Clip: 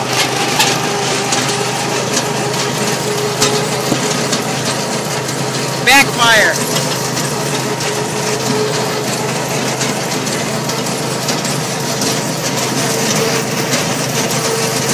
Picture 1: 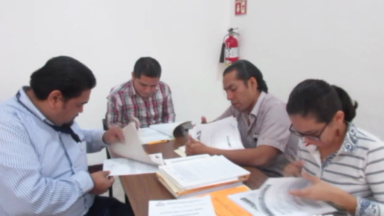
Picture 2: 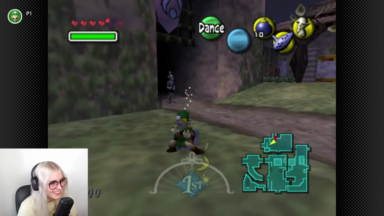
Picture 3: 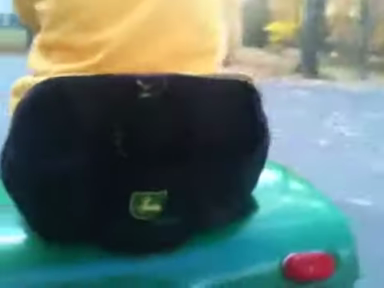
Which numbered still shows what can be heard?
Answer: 3